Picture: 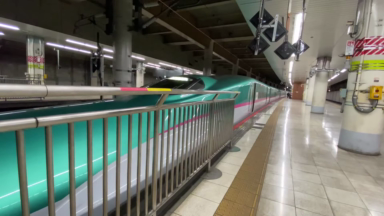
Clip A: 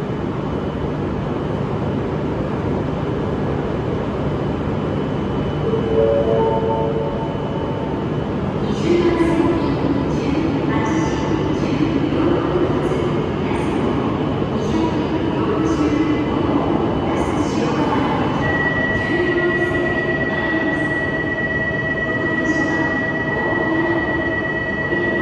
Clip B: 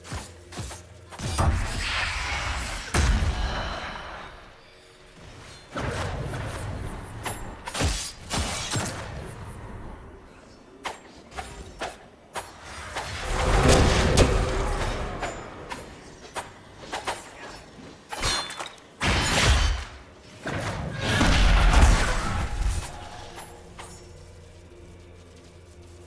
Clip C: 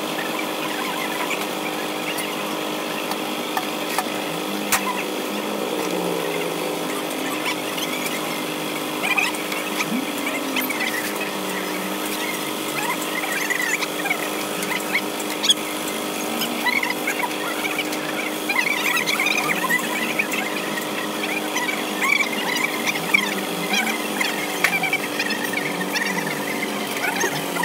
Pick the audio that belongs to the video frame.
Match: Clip A